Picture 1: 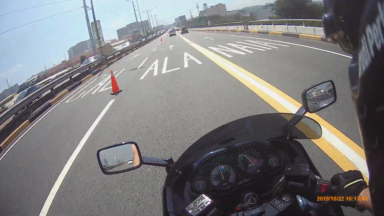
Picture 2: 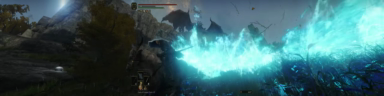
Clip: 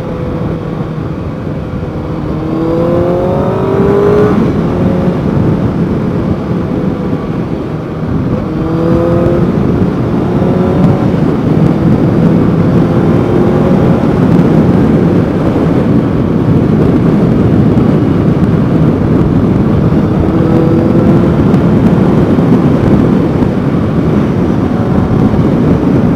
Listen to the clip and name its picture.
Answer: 1